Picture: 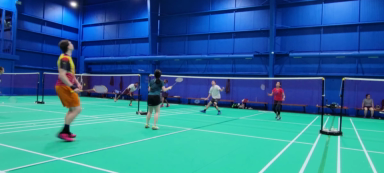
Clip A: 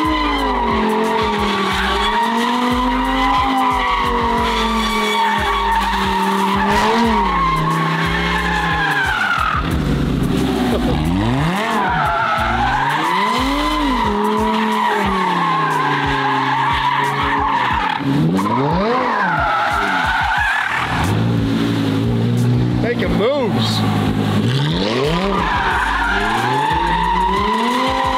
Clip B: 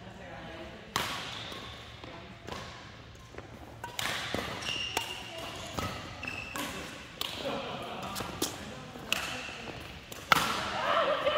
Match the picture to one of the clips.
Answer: B